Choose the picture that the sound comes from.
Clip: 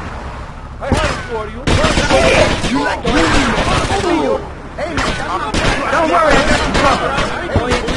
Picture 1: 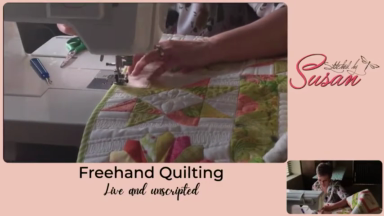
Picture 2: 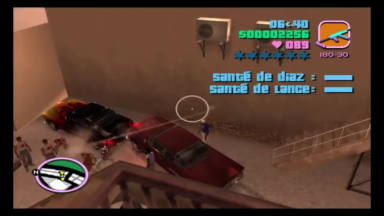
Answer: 2